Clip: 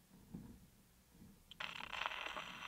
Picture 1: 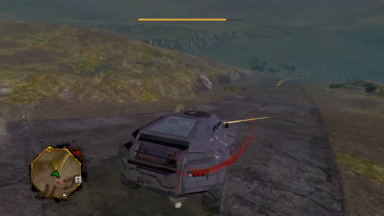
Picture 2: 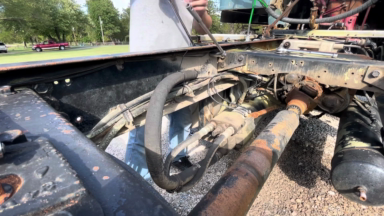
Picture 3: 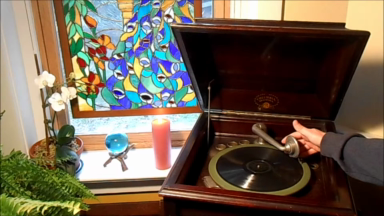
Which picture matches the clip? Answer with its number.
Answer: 3